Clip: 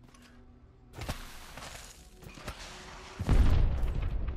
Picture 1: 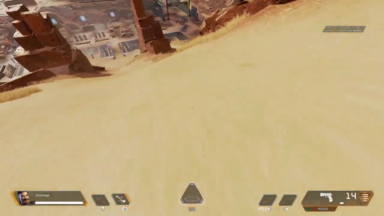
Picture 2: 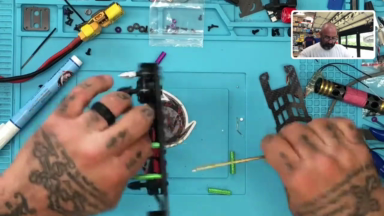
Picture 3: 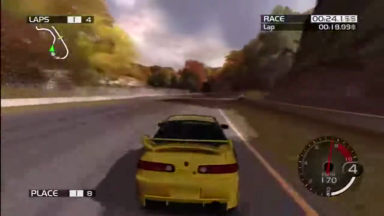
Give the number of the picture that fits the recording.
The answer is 1